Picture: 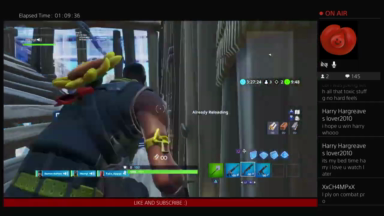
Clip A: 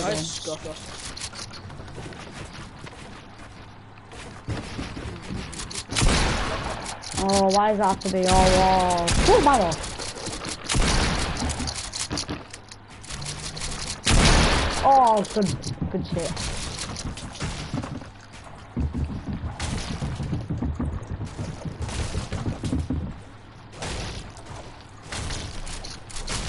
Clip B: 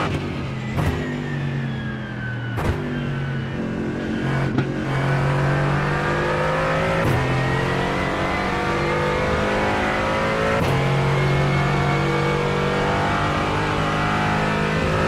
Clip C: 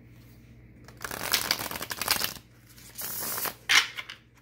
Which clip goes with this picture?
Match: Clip A